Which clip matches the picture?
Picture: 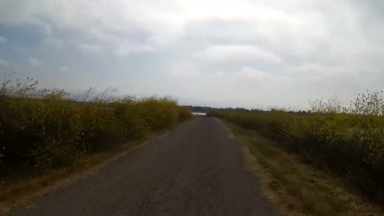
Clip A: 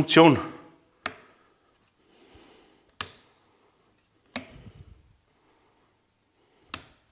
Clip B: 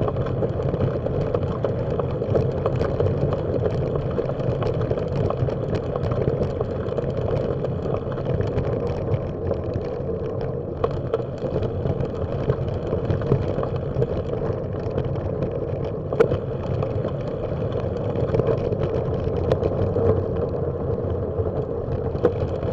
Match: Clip B